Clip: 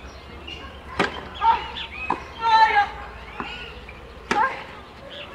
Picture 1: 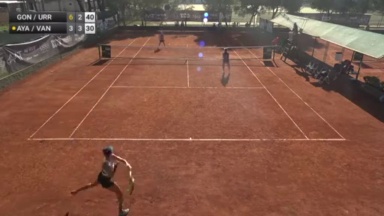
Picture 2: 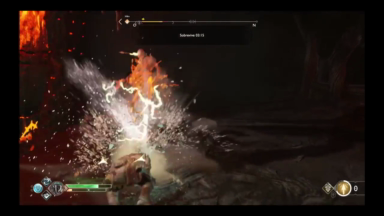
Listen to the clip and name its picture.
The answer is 1